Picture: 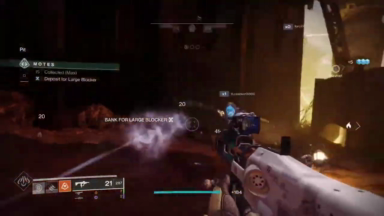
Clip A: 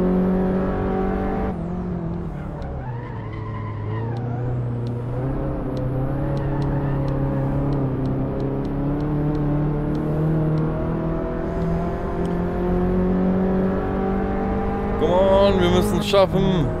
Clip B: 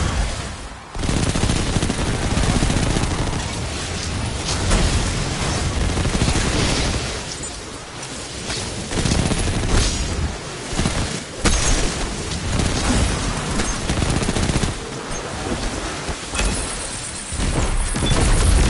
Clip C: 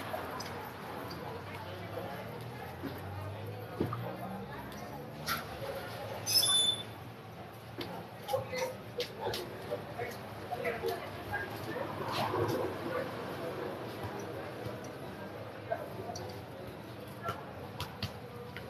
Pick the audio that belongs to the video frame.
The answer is B